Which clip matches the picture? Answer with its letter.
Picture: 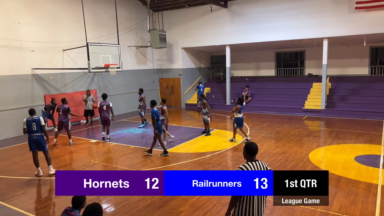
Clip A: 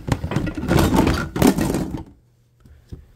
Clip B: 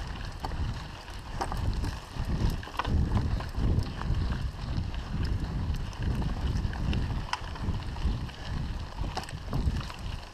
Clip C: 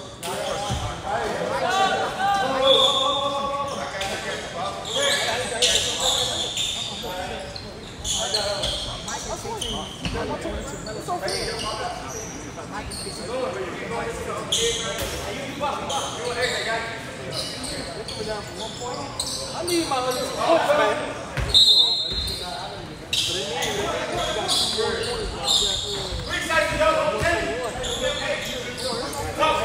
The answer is C